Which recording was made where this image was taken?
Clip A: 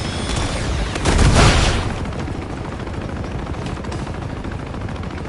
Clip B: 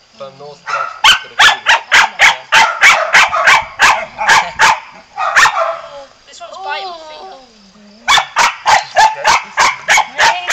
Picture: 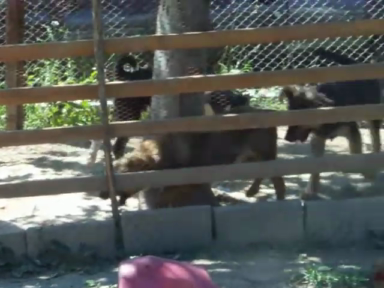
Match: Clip B